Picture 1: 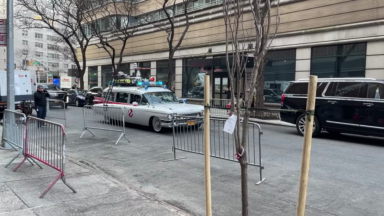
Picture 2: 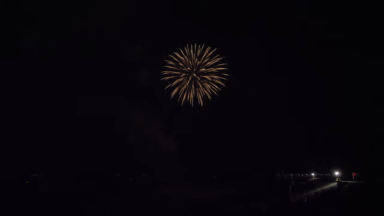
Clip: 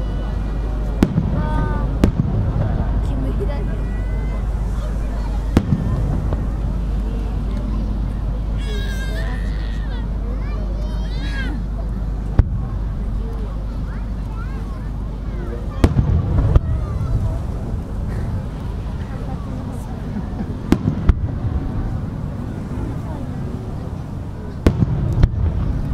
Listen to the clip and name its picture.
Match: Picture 2